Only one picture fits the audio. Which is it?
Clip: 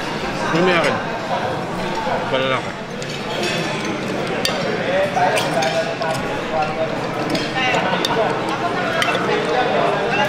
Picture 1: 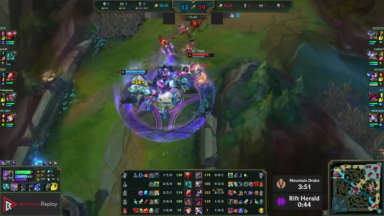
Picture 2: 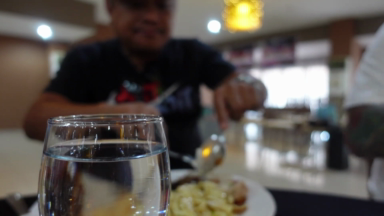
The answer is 2